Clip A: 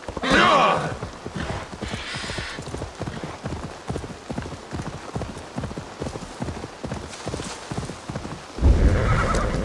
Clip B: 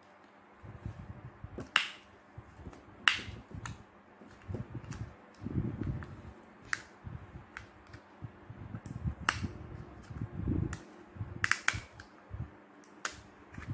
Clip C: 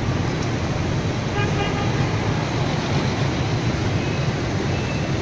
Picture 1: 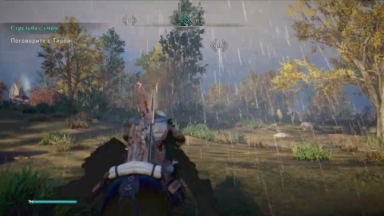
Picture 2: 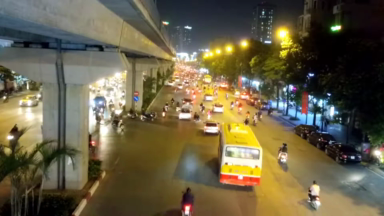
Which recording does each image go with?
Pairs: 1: A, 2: C